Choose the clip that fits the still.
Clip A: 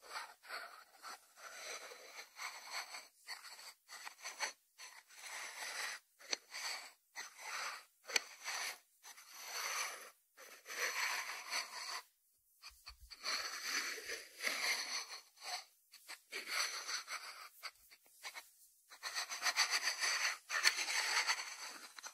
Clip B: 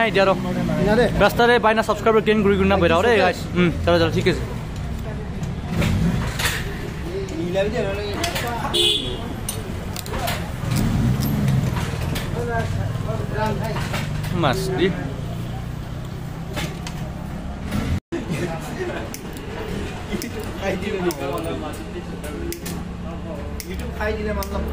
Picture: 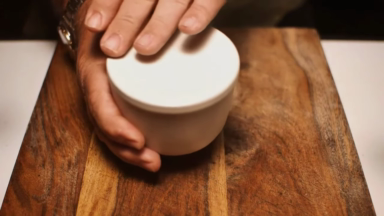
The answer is A